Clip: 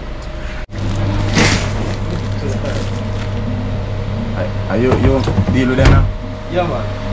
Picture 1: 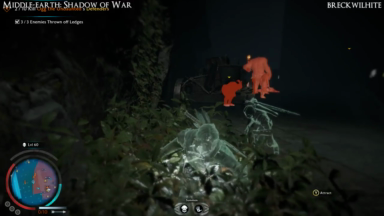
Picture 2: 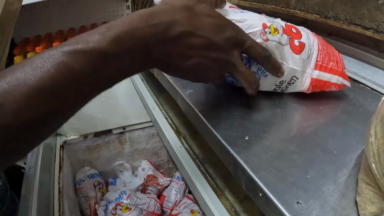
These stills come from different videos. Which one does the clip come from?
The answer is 2